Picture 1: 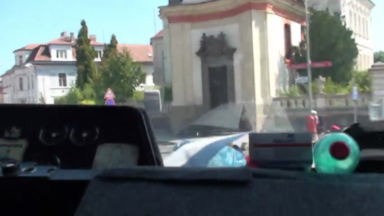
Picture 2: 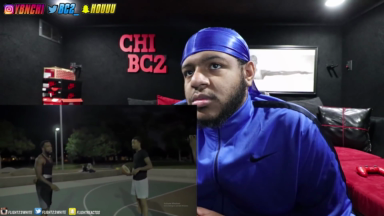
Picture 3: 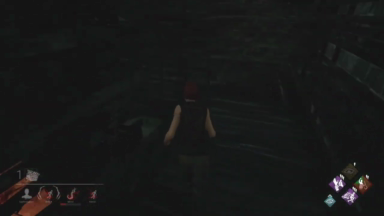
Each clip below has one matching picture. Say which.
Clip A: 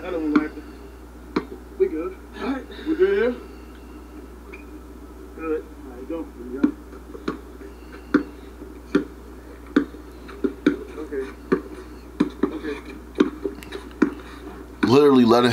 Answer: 2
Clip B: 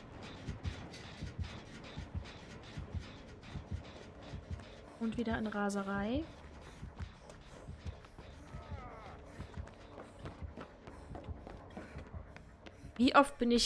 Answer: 3